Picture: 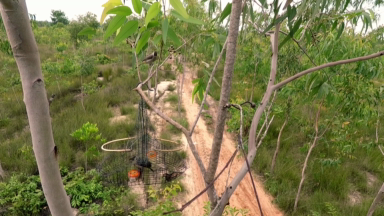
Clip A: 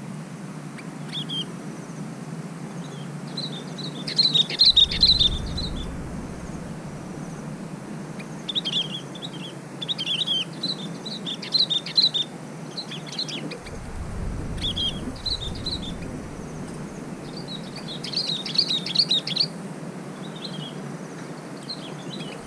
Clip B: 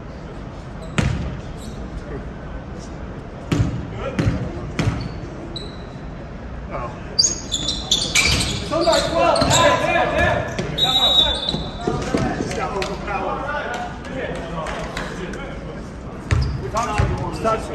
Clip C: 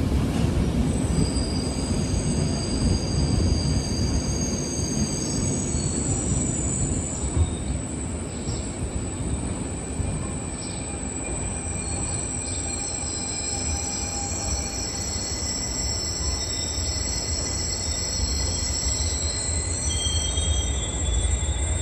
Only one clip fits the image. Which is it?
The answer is A